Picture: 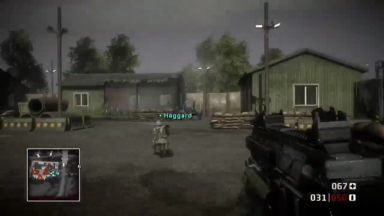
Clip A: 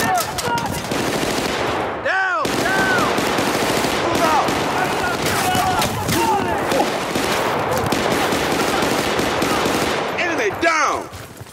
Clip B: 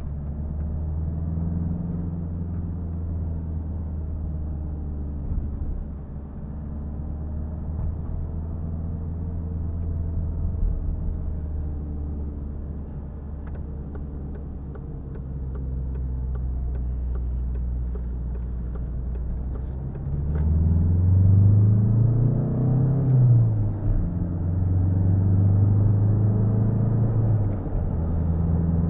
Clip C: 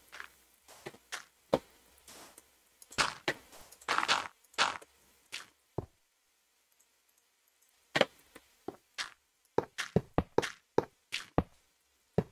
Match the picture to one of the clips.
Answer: A